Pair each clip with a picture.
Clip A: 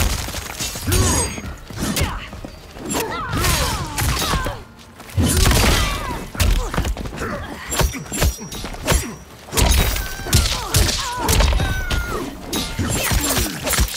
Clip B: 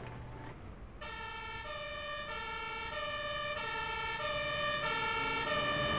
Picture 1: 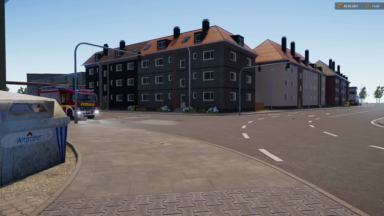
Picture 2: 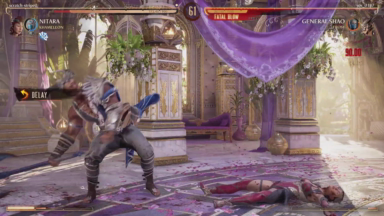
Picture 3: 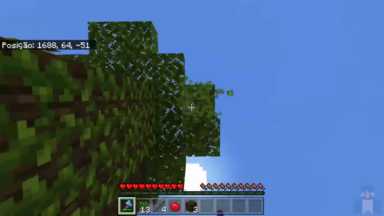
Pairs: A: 2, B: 1